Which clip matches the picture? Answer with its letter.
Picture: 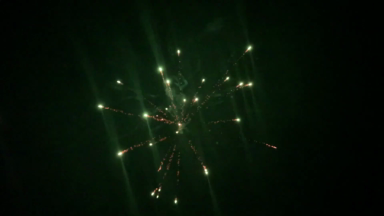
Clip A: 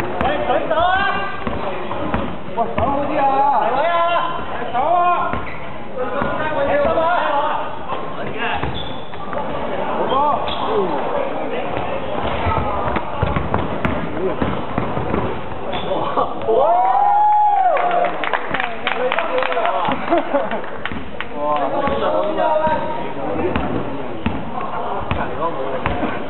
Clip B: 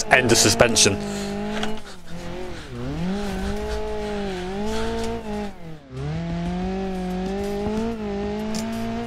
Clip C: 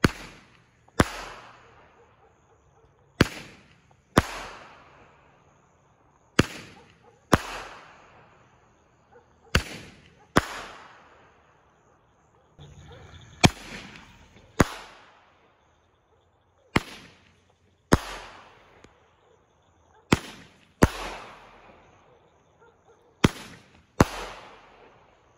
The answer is C